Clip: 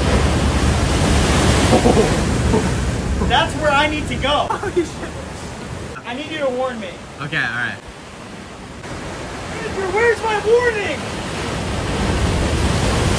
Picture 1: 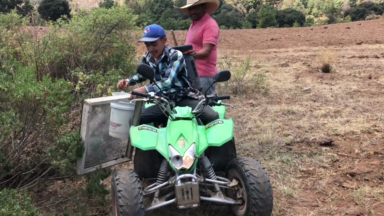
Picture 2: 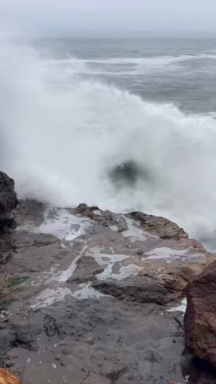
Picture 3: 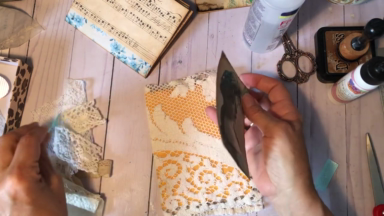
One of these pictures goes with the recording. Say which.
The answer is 2